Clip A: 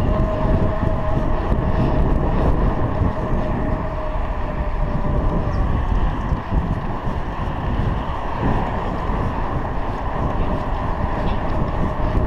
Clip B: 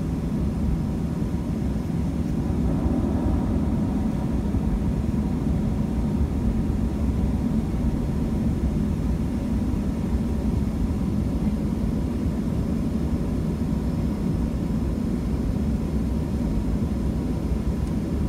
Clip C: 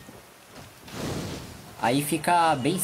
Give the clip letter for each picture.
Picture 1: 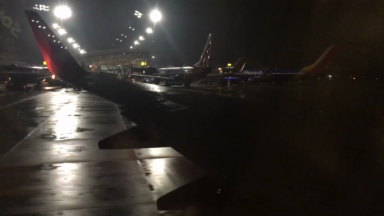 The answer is B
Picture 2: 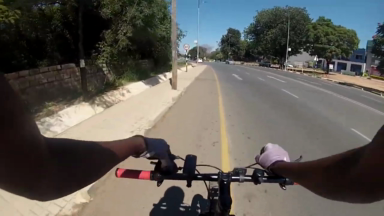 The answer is A